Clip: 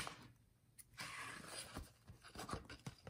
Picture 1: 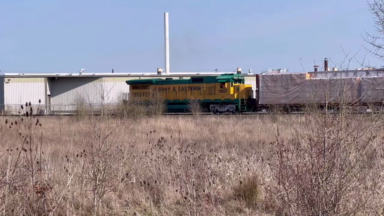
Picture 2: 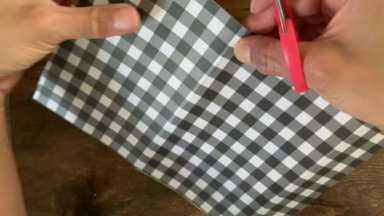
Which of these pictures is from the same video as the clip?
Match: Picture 2